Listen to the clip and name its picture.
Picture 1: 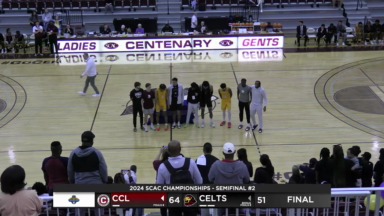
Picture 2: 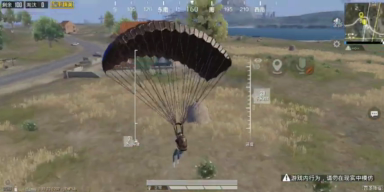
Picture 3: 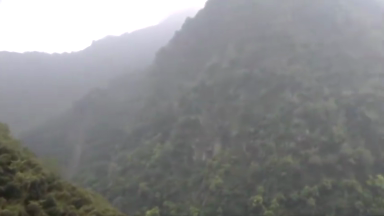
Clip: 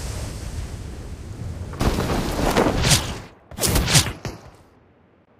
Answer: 2